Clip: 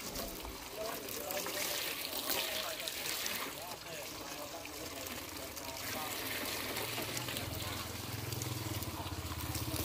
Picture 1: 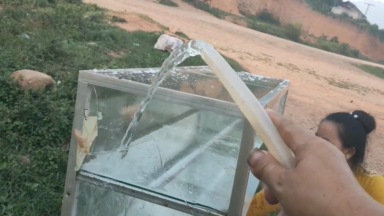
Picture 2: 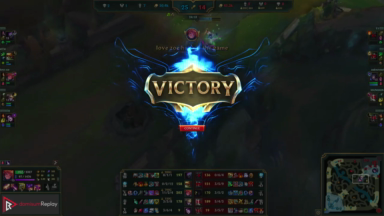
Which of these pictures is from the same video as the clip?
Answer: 1